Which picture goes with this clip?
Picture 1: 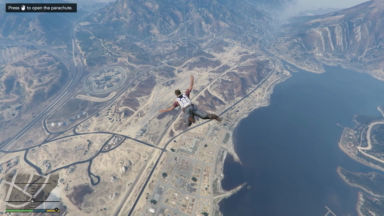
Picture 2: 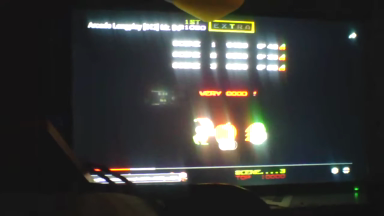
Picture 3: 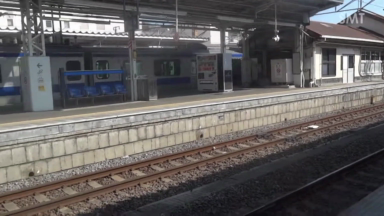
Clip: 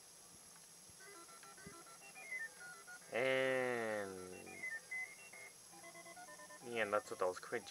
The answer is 2